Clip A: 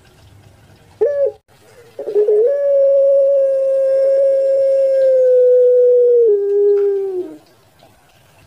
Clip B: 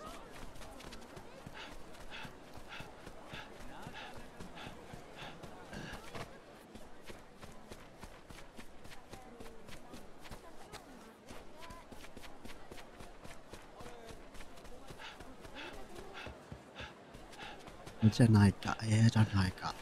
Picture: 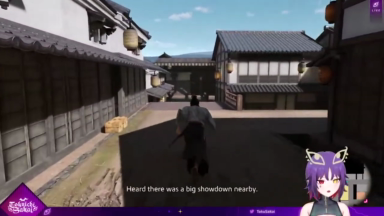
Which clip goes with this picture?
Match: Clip B